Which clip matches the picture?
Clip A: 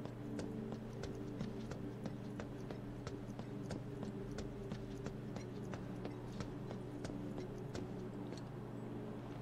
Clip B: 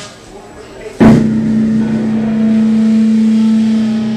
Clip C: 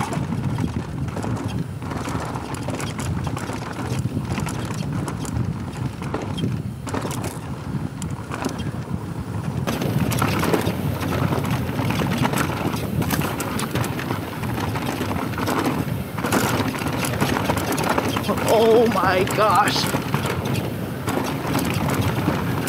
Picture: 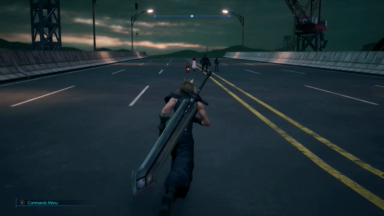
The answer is A